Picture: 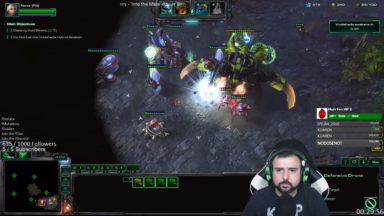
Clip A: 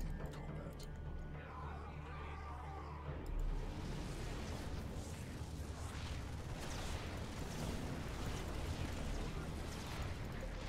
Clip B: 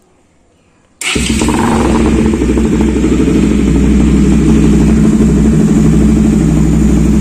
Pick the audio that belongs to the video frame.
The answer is A